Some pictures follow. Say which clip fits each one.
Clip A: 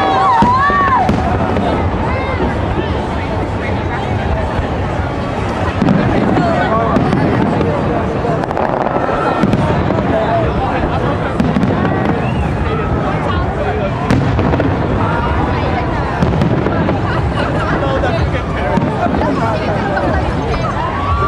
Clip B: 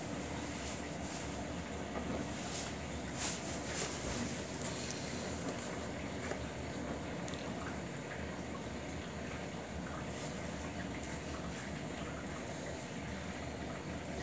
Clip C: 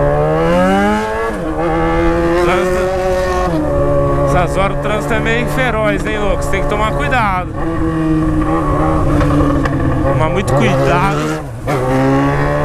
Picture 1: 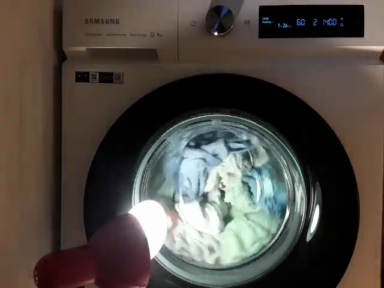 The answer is B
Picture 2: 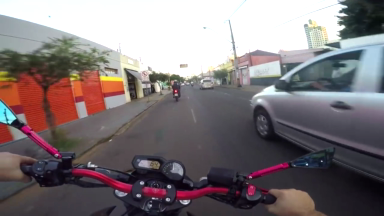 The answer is C